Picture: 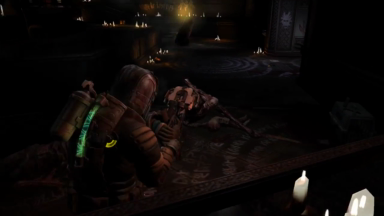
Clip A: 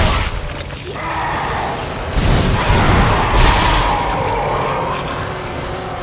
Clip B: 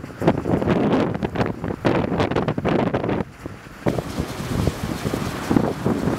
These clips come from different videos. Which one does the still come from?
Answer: A